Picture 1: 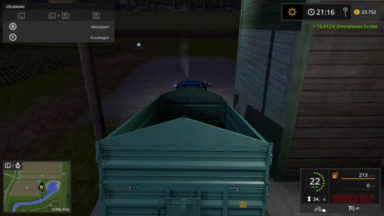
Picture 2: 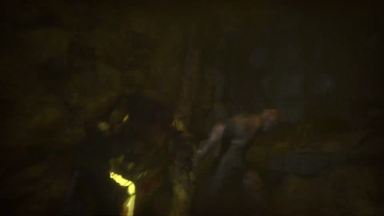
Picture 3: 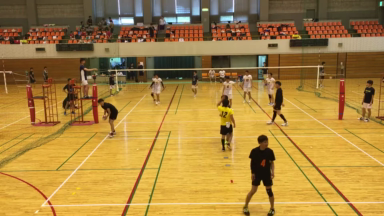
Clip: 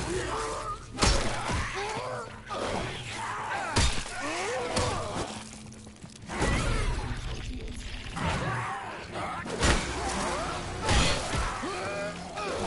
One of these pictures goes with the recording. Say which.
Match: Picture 2